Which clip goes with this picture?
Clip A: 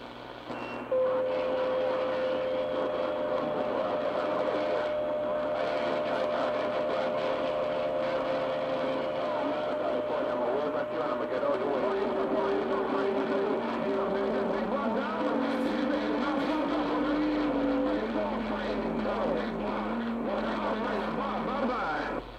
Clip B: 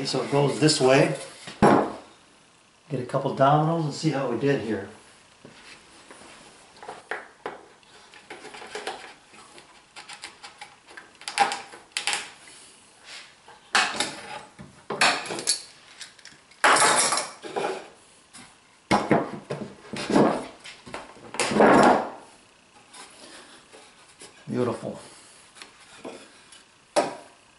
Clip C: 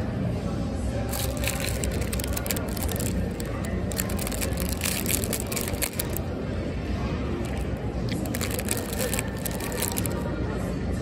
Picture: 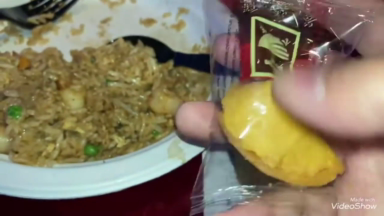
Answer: C